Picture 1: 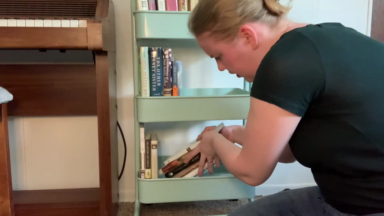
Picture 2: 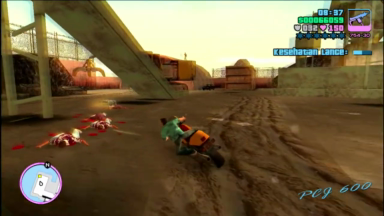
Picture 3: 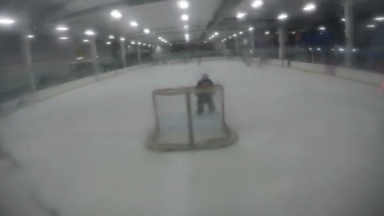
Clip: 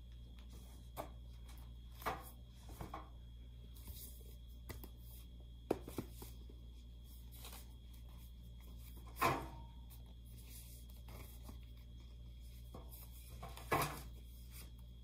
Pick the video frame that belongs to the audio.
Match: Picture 1